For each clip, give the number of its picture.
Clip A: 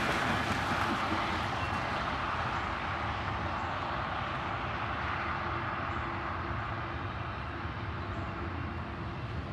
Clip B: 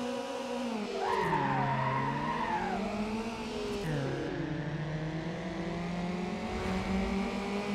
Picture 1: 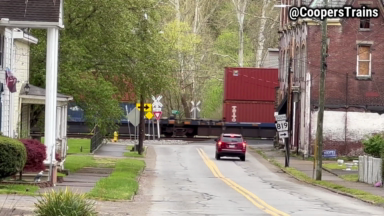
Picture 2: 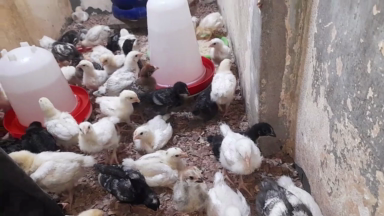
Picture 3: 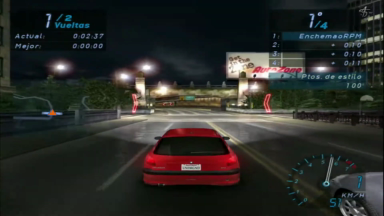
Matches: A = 1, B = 3